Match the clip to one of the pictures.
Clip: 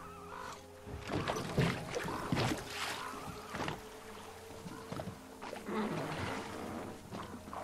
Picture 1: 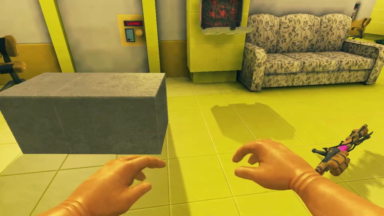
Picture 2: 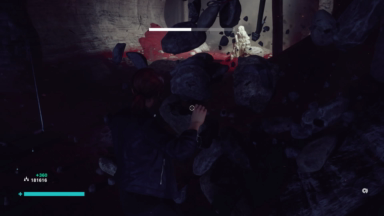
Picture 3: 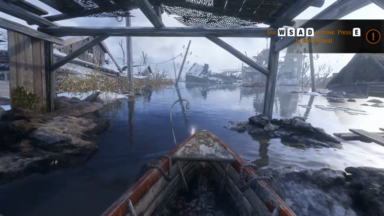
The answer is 3